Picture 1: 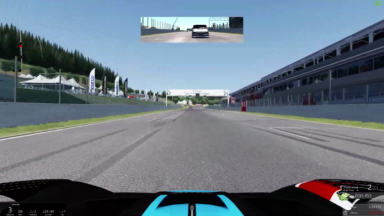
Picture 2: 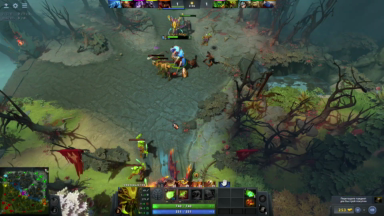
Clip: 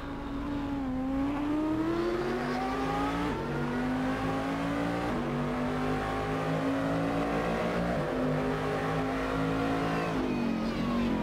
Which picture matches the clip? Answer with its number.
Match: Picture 1